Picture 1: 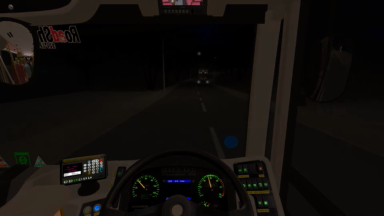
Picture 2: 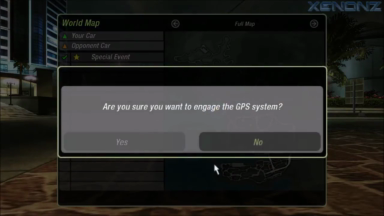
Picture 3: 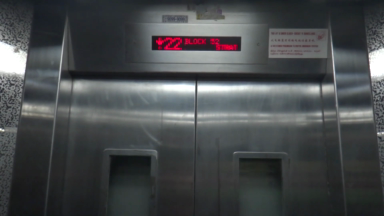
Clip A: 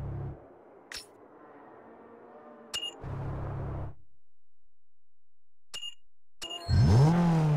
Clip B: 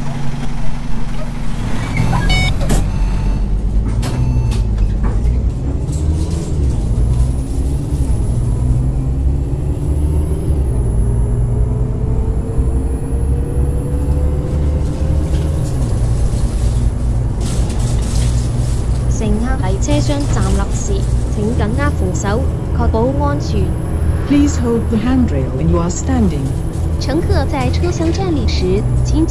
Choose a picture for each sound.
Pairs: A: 2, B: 1